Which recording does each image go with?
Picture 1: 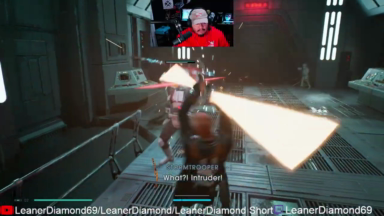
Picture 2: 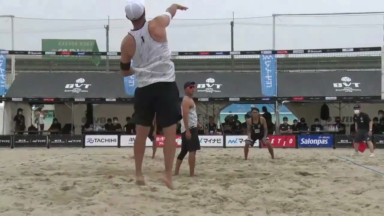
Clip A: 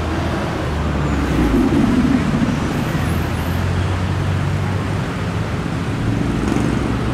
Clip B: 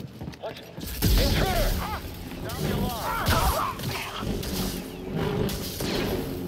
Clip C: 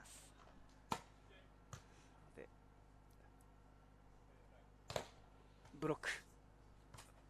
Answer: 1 B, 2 C